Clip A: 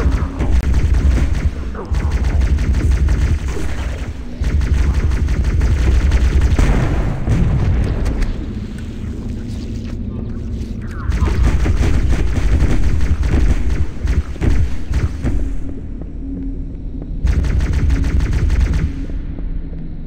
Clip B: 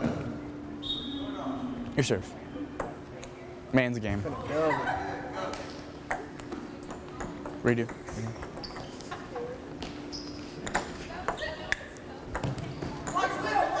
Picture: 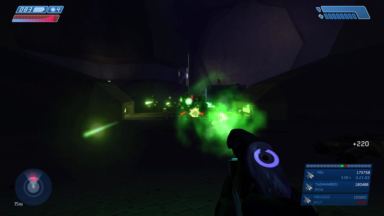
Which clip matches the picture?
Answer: A